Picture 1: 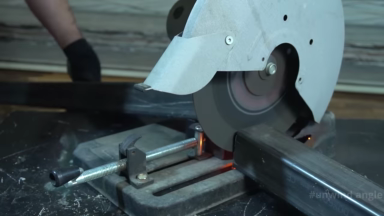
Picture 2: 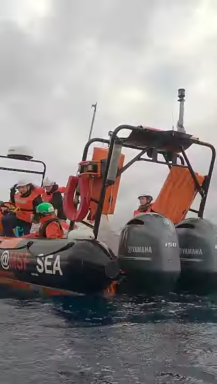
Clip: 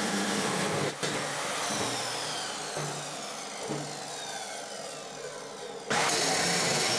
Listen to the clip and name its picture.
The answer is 1